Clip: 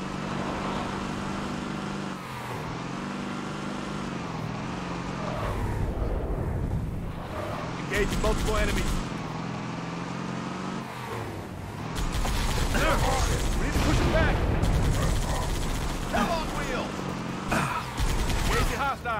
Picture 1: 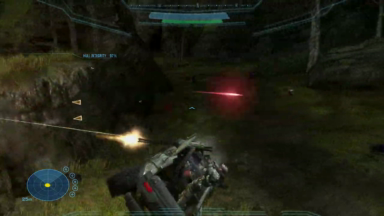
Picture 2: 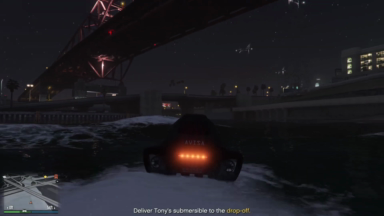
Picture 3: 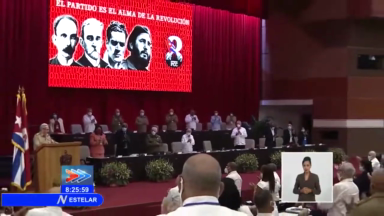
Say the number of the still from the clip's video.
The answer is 1